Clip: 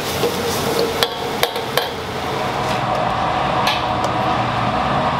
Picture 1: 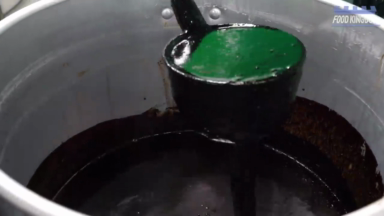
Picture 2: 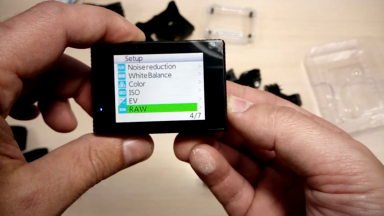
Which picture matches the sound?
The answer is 1